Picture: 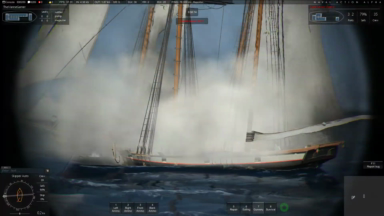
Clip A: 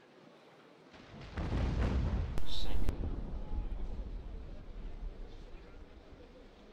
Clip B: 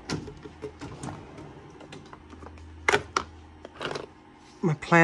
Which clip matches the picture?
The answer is A